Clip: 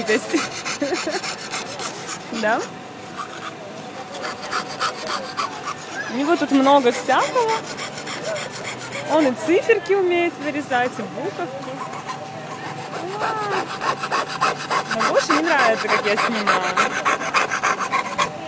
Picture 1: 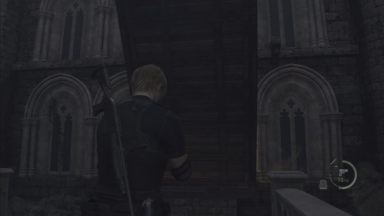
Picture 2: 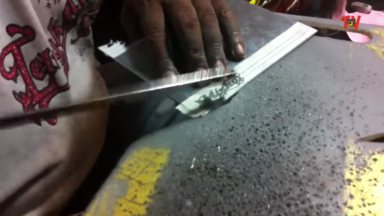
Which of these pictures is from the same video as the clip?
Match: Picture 2